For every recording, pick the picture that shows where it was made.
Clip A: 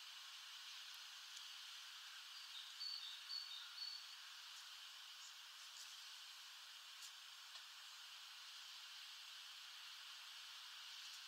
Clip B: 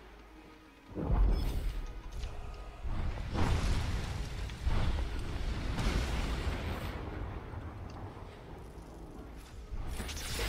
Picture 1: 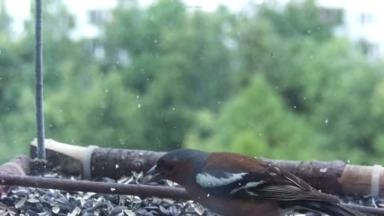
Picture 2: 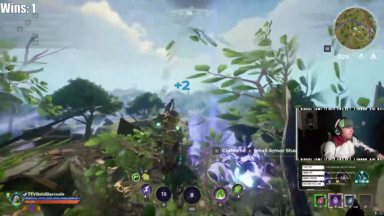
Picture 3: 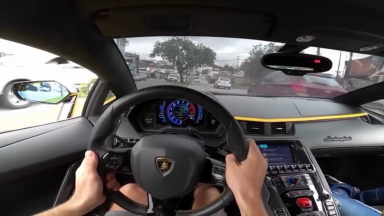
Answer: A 1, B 2